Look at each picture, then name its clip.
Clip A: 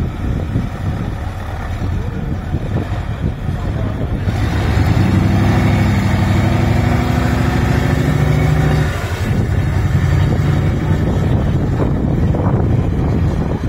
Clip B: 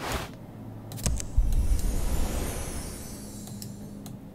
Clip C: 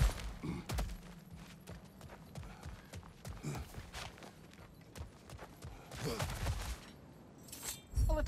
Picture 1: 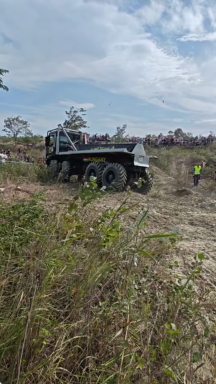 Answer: A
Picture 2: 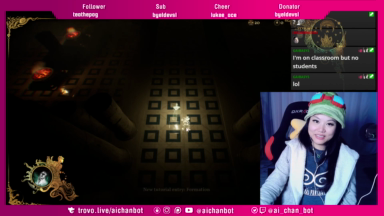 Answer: B